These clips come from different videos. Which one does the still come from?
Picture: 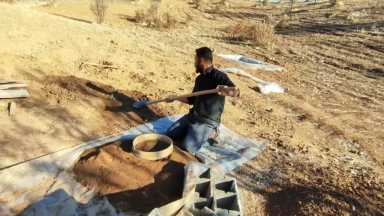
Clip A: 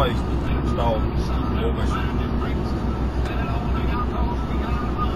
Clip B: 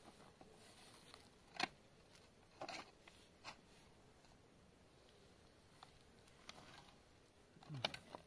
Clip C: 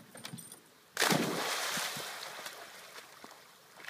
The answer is B